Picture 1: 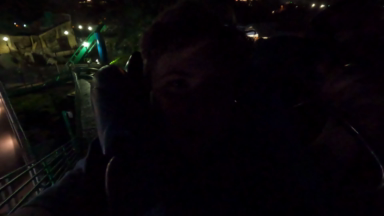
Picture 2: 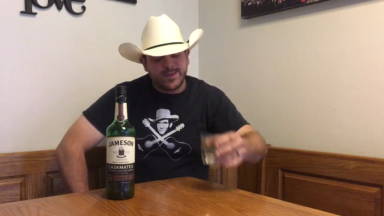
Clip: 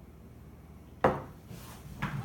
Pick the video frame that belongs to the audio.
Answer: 2